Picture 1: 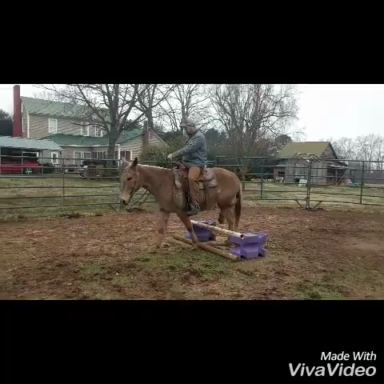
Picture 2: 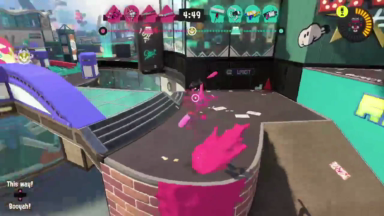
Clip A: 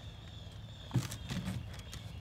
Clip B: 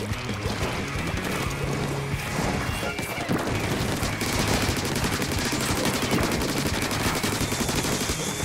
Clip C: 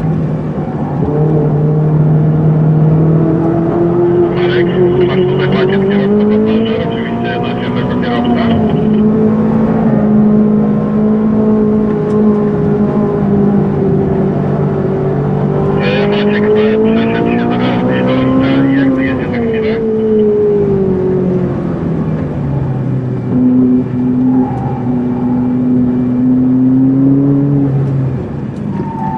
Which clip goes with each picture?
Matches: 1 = A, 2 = B